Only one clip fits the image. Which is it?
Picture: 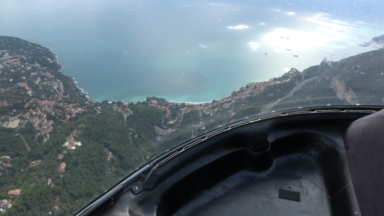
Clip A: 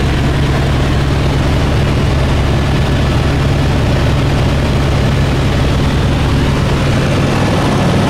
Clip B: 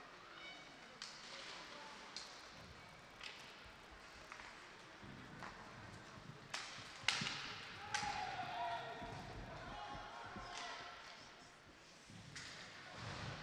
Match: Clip A